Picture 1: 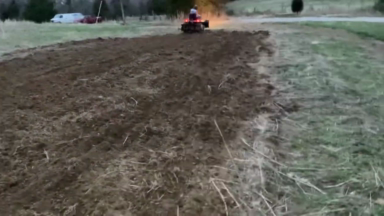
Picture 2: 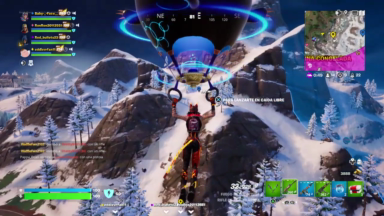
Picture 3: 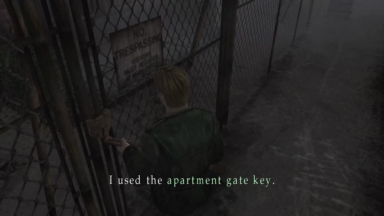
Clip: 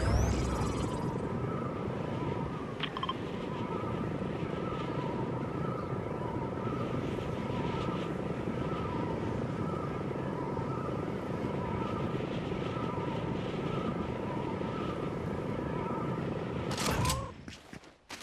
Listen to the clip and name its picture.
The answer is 2